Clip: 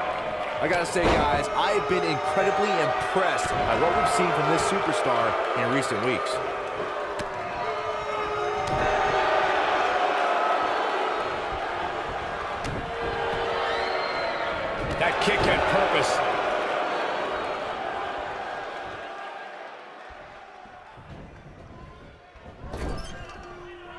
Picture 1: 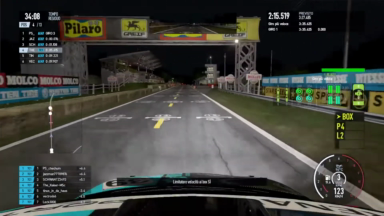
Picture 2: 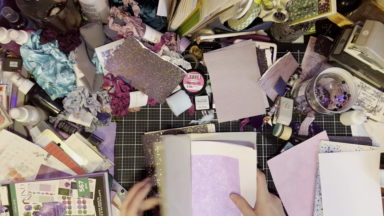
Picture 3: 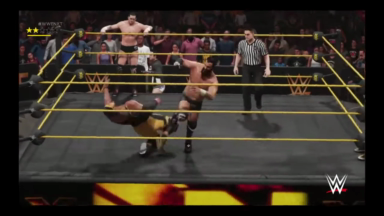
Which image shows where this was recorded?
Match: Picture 3